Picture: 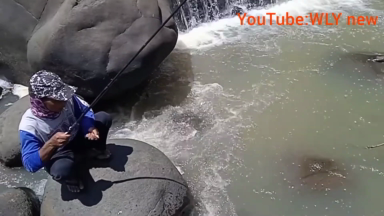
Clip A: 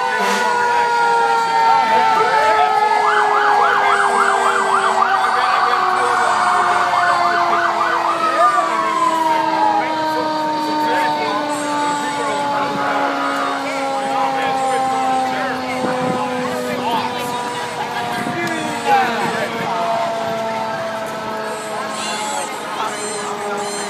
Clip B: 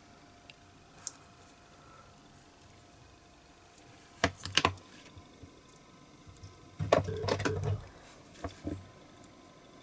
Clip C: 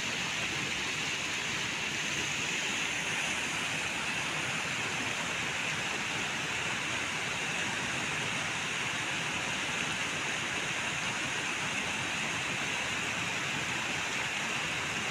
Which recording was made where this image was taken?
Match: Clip C